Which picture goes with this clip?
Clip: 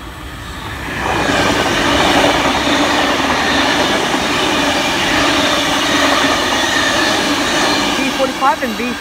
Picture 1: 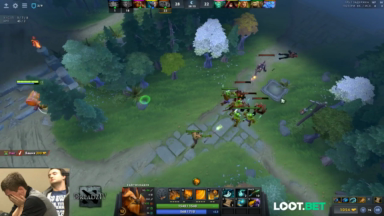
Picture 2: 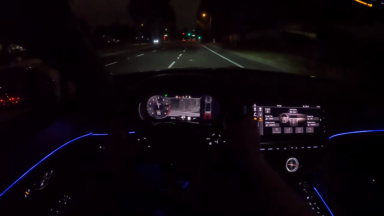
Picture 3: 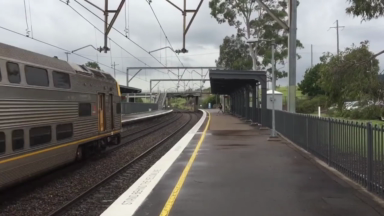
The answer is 3